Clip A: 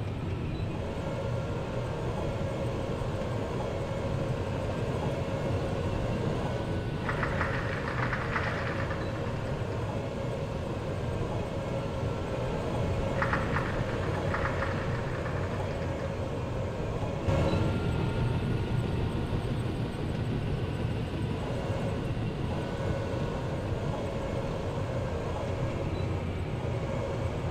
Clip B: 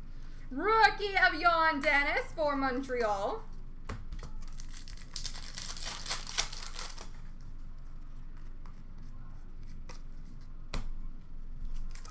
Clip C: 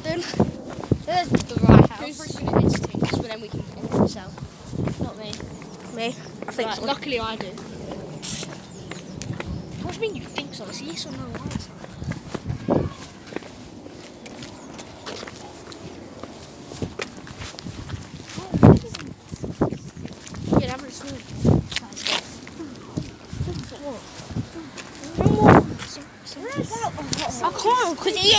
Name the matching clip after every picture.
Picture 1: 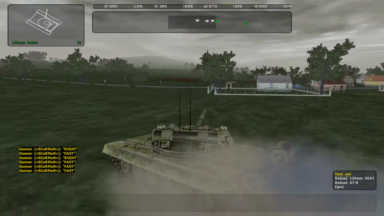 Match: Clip A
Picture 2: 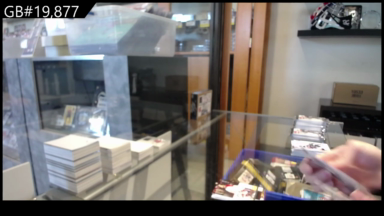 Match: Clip B